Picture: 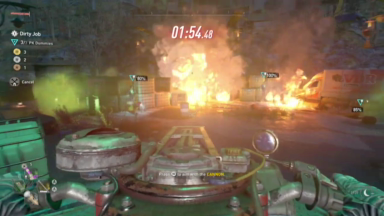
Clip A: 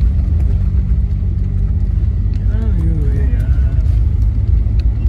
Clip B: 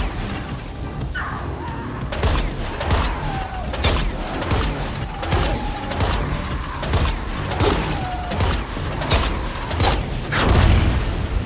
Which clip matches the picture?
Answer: B